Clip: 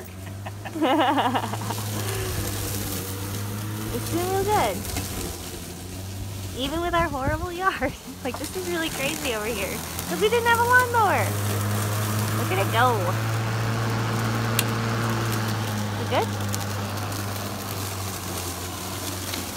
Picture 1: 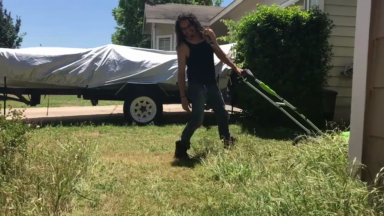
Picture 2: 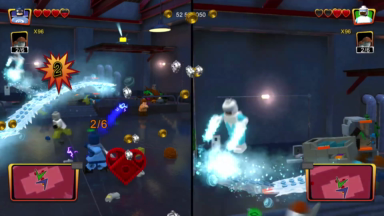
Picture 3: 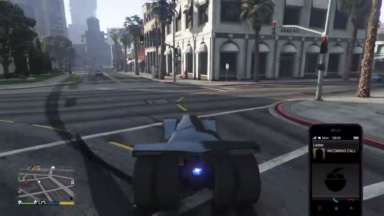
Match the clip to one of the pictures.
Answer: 1